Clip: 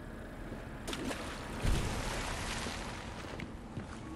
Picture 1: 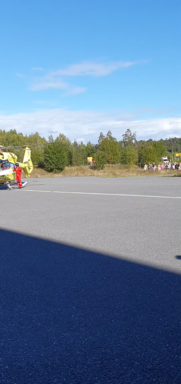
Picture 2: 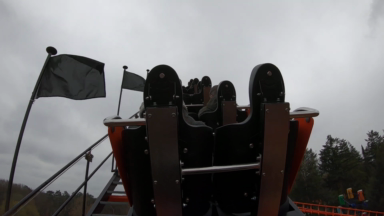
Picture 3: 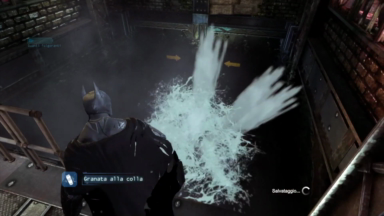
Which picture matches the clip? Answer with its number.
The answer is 3